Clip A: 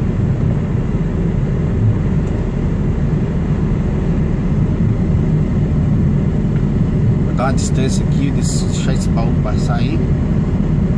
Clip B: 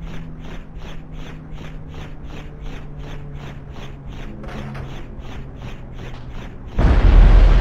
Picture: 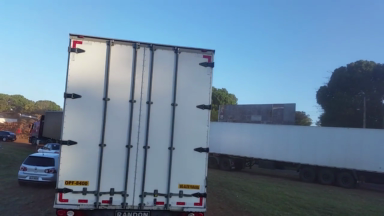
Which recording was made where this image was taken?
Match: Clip A